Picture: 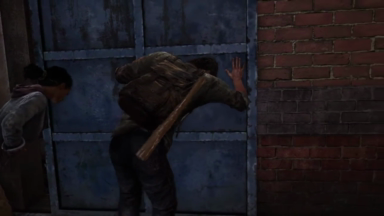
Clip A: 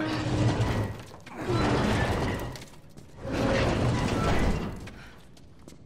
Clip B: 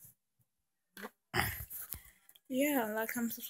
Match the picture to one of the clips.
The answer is A